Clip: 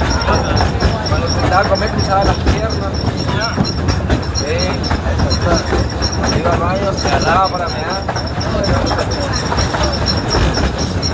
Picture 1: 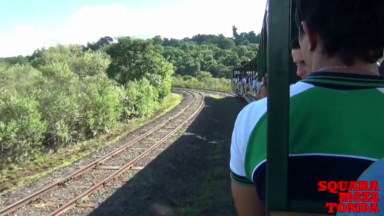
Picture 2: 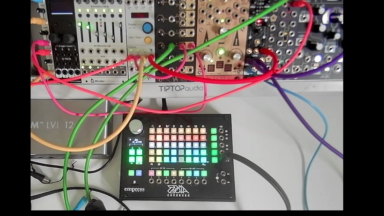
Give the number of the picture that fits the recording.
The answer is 1